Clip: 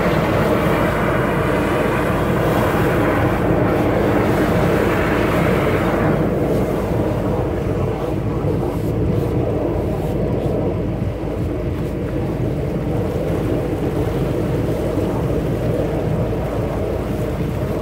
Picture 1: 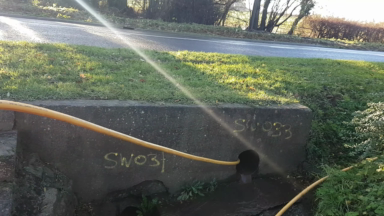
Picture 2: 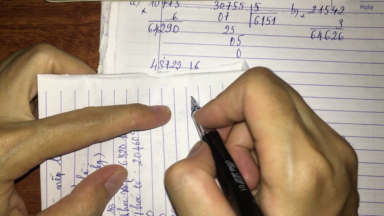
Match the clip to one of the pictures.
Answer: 1